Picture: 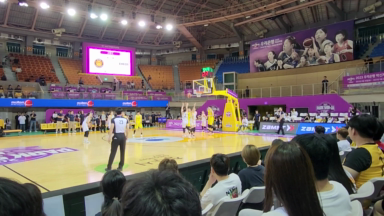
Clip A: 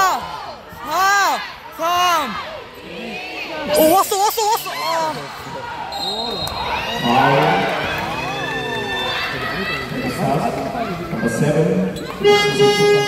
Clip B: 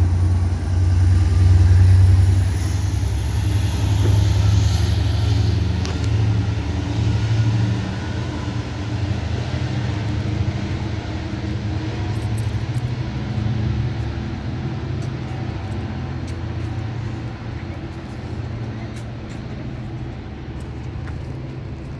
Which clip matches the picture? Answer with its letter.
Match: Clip A